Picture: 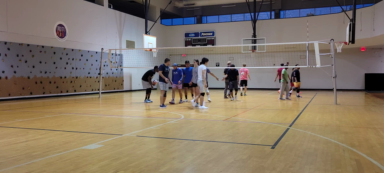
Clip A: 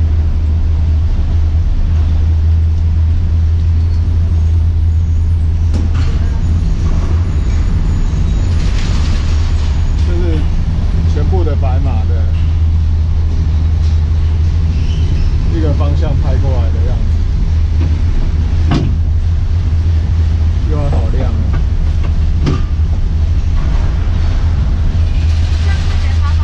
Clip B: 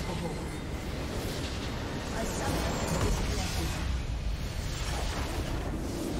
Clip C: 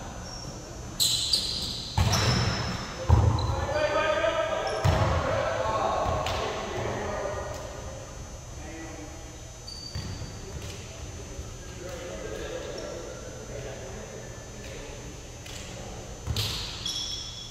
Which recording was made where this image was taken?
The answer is C